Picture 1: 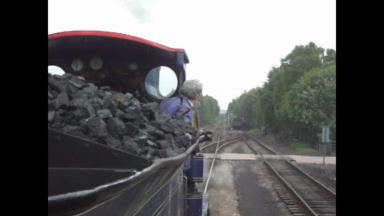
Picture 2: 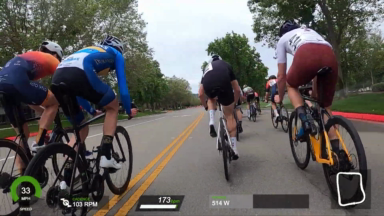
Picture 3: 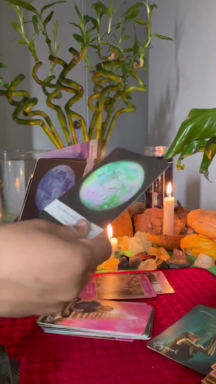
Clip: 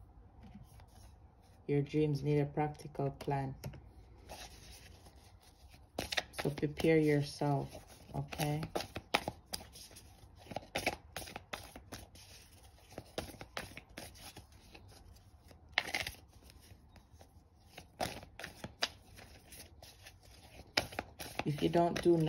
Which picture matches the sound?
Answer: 3